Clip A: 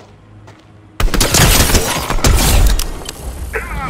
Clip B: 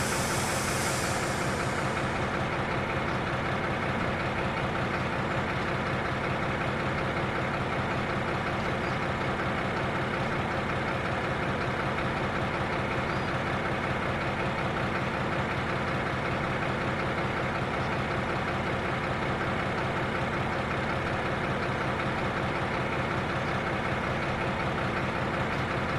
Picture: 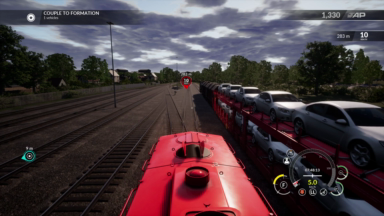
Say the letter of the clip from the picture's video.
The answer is B